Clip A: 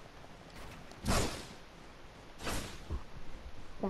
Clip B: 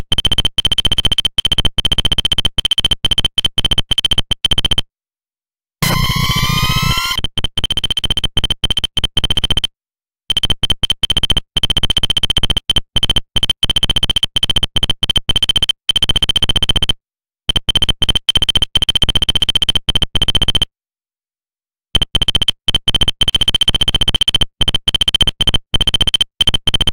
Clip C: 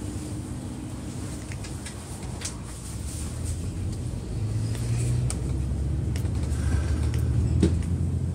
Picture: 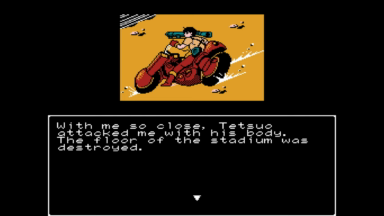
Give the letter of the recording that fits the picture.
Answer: B